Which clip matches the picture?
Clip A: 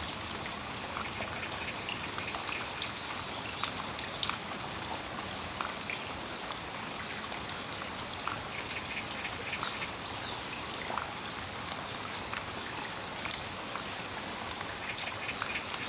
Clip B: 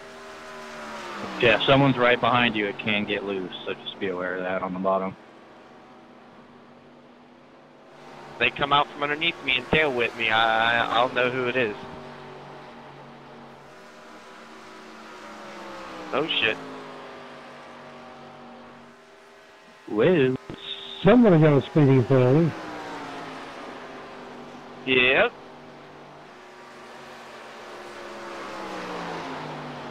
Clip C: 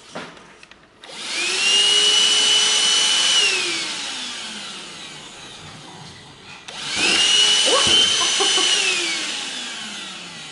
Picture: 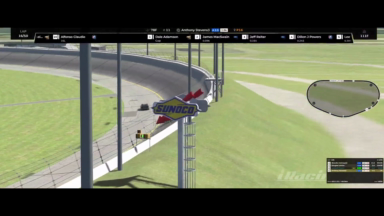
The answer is B